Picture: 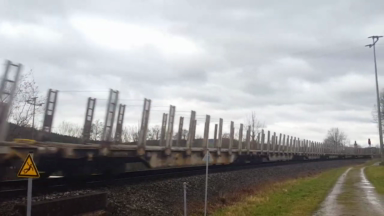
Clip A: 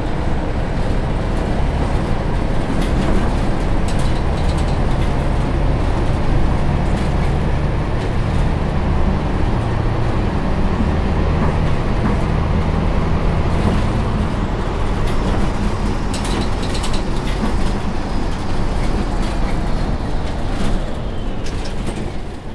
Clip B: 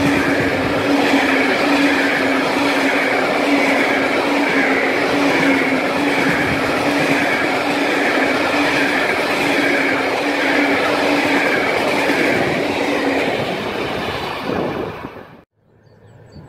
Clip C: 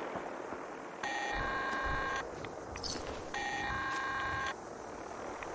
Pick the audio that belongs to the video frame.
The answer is B